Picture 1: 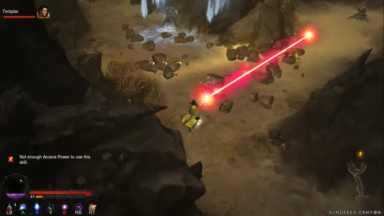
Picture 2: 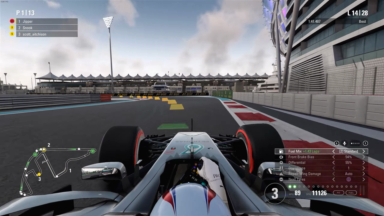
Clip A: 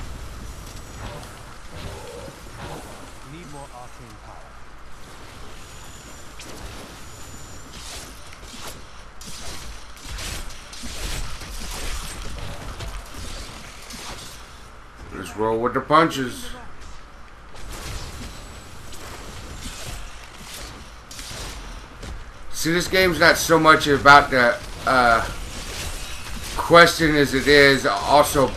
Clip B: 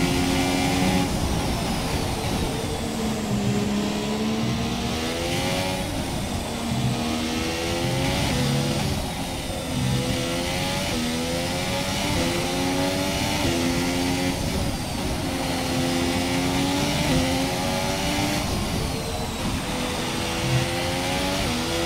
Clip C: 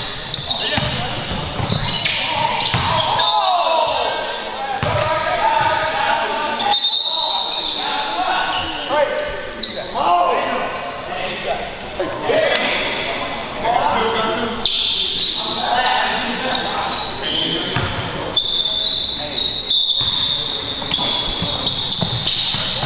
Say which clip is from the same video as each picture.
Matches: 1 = A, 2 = B